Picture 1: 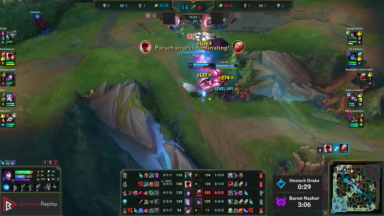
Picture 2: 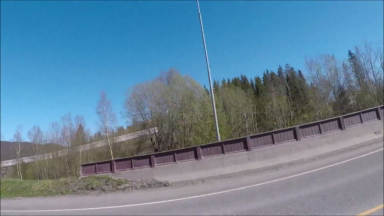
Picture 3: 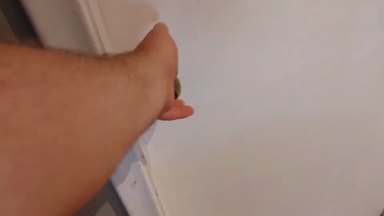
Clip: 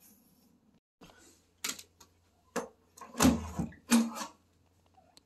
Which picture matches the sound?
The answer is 3